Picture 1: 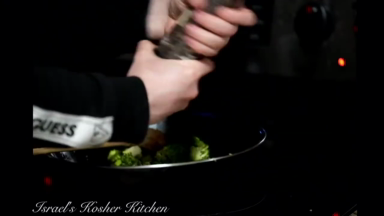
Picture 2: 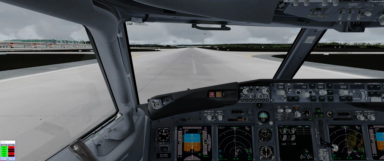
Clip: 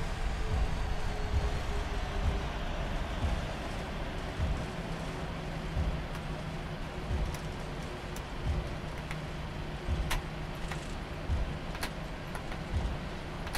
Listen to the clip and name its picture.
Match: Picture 2